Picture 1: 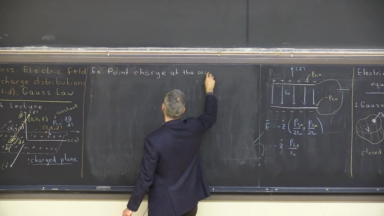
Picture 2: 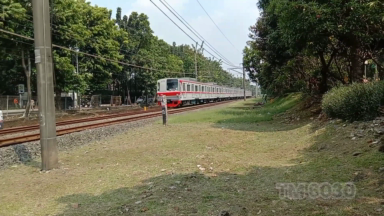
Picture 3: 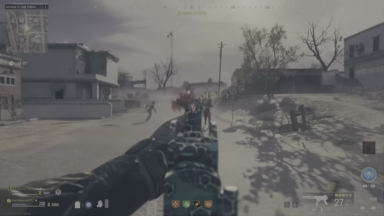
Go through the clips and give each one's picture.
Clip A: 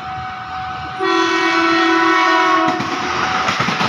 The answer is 2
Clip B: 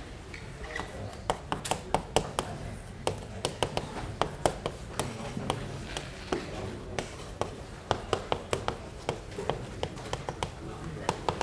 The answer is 1